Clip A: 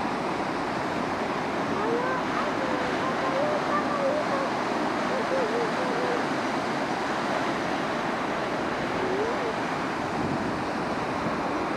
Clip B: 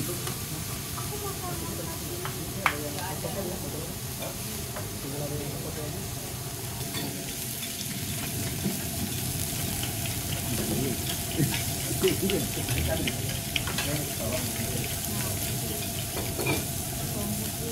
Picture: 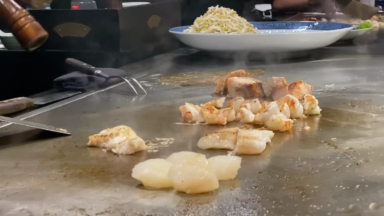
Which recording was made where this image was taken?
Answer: B